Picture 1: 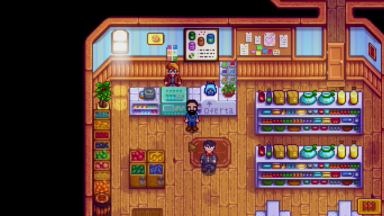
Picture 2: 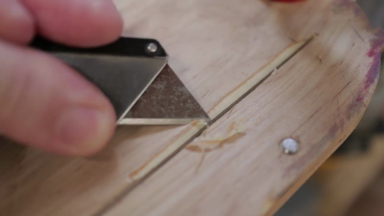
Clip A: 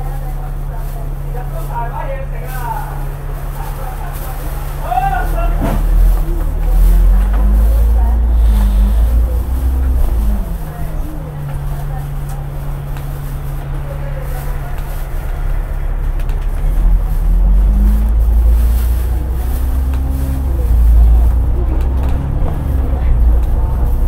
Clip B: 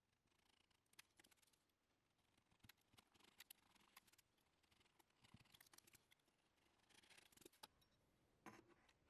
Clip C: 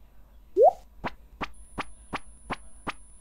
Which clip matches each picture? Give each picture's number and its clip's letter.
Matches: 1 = C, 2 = B